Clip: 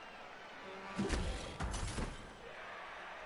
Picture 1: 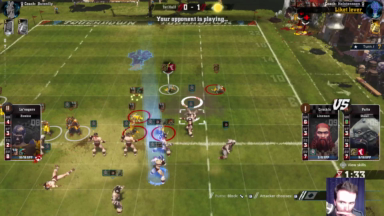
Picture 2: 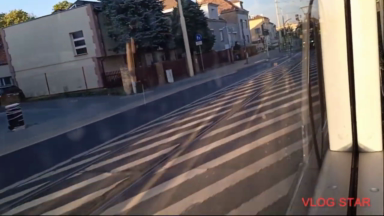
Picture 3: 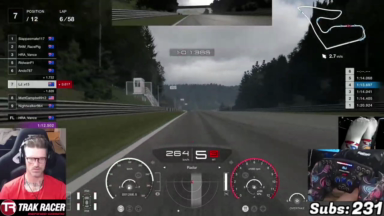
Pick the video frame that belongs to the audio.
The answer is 1